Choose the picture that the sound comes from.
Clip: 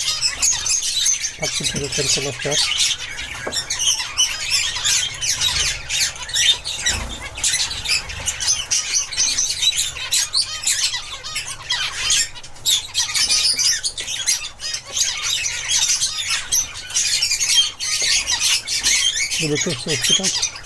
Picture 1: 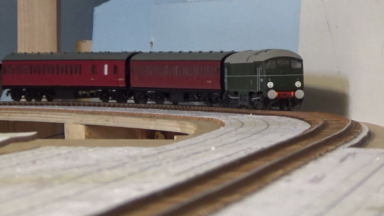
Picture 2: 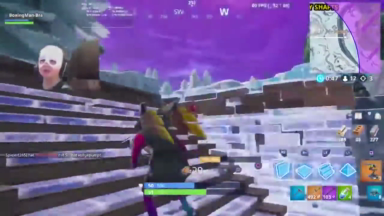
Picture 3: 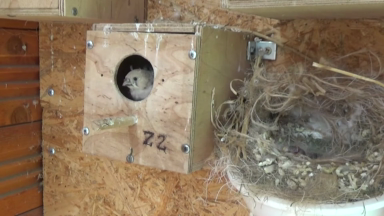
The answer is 3